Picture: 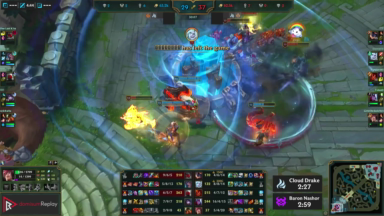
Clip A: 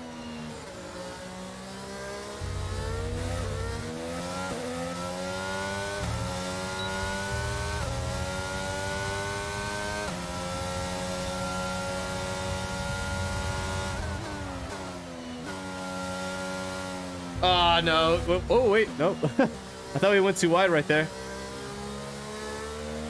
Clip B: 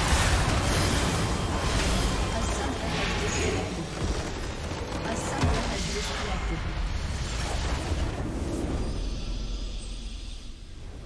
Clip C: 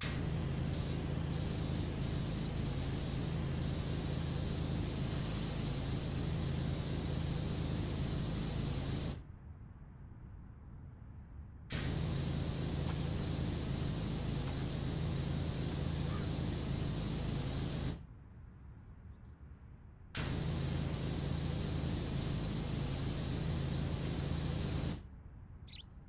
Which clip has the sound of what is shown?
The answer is B